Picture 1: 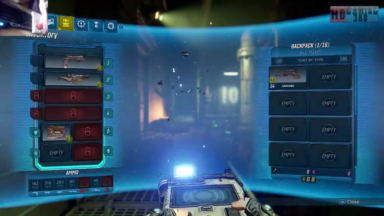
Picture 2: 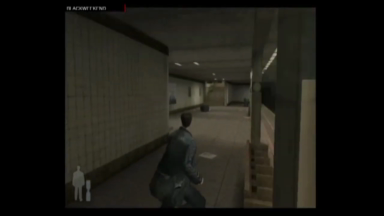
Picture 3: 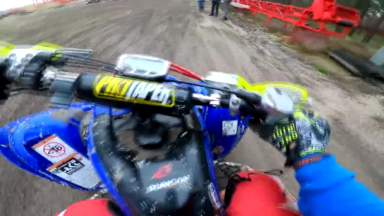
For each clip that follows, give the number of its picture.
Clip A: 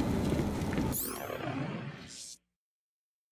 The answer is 1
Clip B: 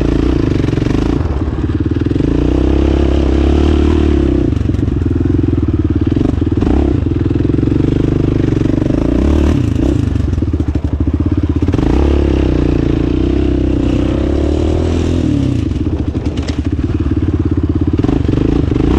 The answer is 3